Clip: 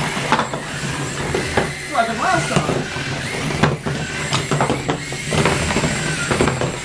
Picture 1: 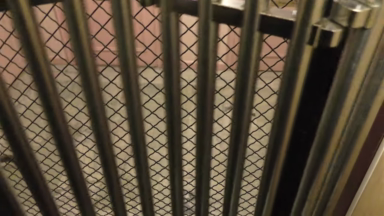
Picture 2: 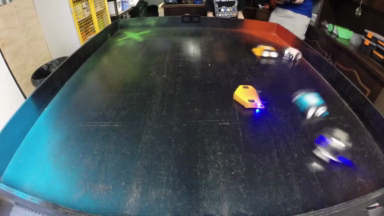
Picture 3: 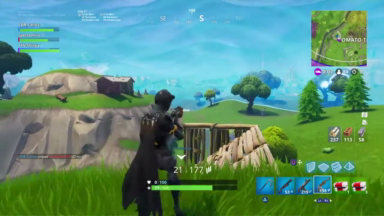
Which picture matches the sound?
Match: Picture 2